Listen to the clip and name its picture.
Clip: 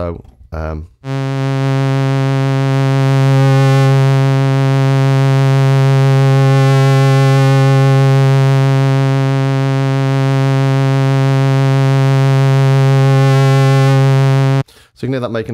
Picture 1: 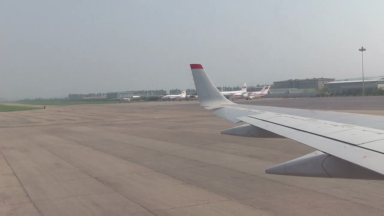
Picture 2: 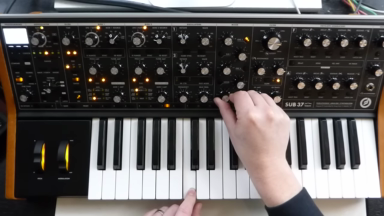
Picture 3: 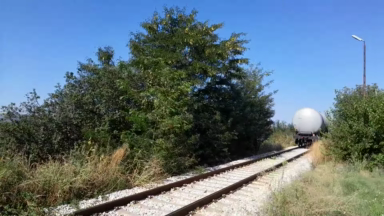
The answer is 2